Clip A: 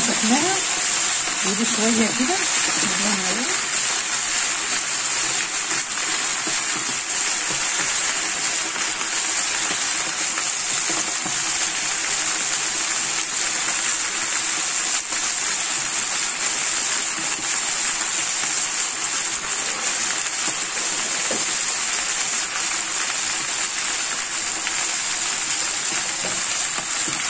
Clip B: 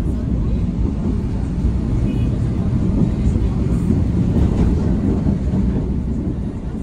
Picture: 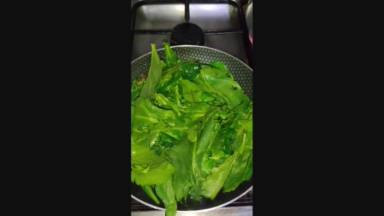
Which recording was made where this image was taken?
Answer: A